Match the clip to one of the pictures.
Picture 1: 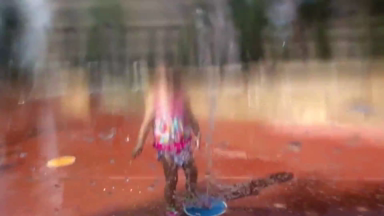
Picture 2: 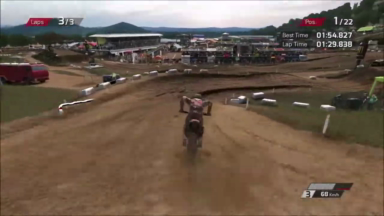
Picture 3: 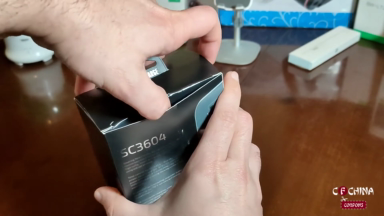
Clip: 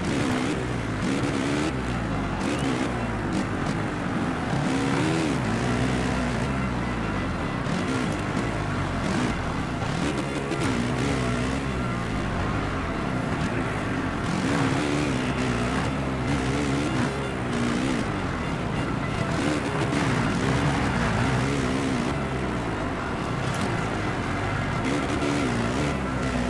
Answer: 2